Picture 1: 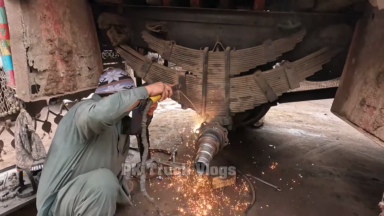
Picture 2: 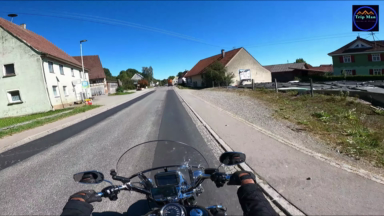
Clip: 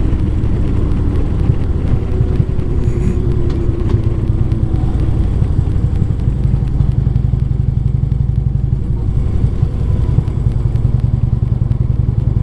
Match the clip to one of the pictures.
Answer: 2